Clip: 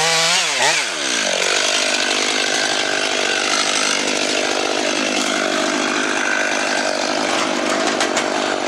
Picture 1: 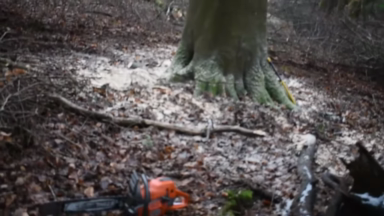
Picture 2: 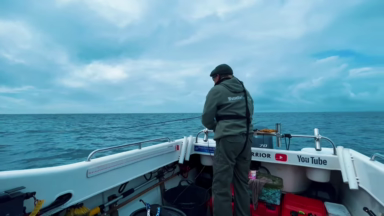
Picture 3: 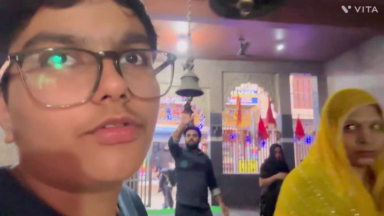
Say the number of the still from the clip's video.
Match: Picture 1